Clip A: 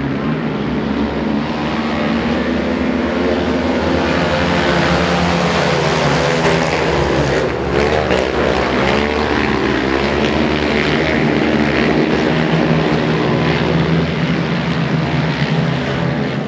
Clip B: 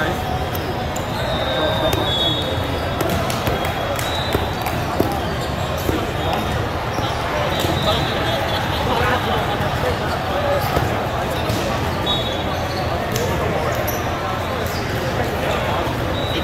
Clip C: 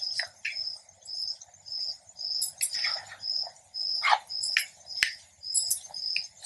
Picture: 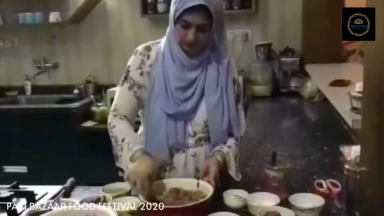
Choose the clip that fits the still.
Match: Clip C